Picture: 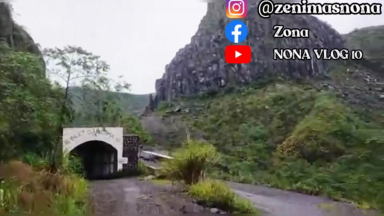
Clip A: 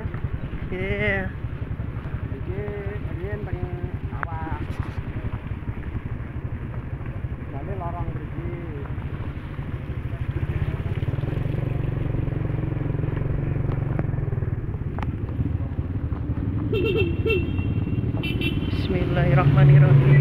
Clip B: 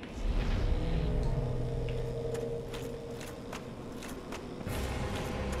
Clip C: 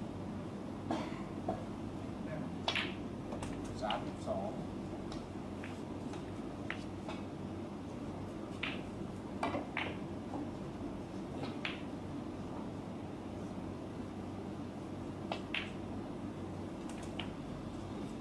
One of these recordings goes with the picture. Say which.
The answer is A